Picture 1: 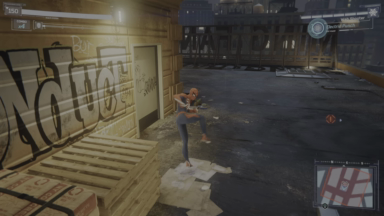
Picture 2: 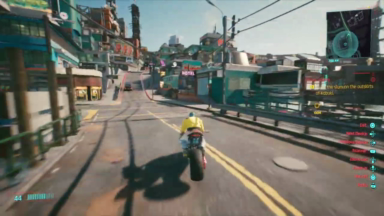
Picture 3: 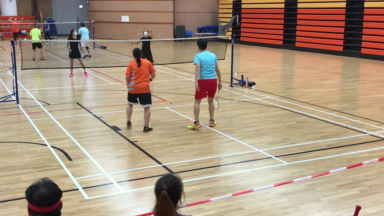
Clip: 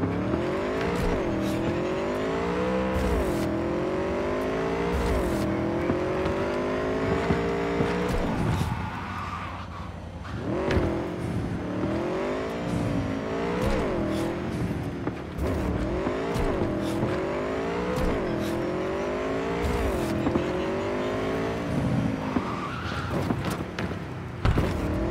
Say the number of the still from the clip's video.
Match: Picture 2